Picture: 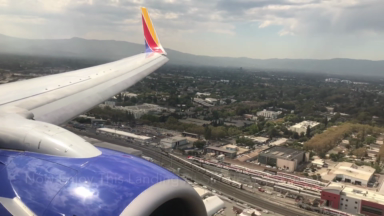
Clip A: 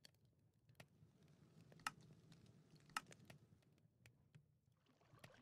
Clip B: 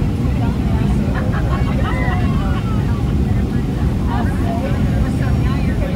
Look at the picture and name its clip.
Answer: B